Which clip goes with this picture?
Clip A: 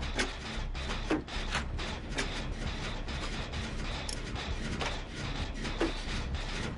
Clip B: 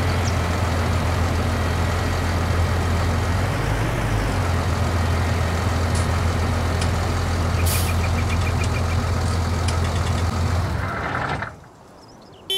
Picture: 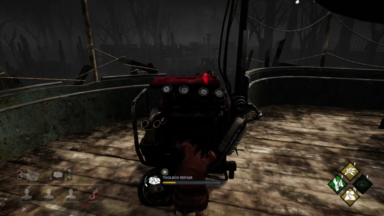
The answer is A